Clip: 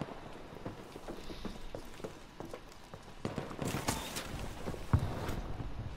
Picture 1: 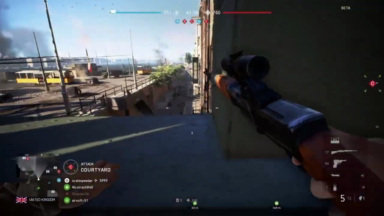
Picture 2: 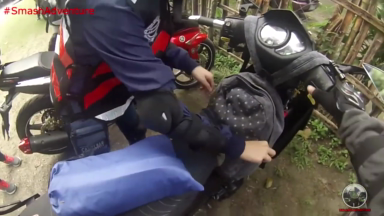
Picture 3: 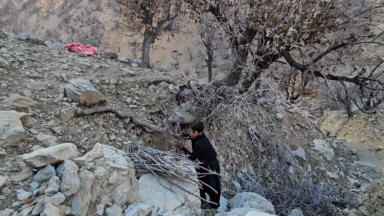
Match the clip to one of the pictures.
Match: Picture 1